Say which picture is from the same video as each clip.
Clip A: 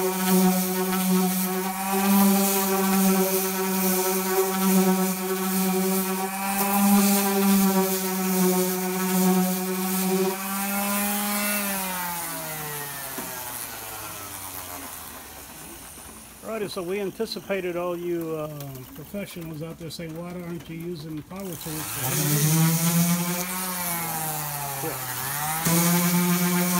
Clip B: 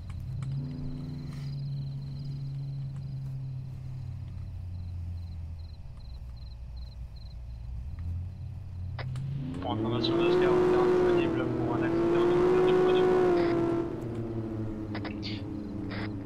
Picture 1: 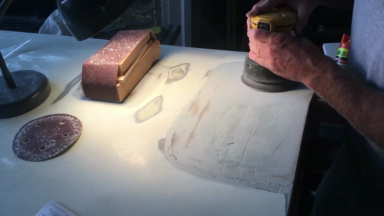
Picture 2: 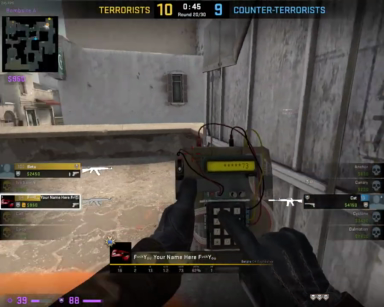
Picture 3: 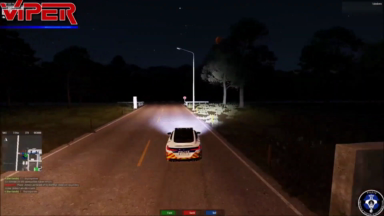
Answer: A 1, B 3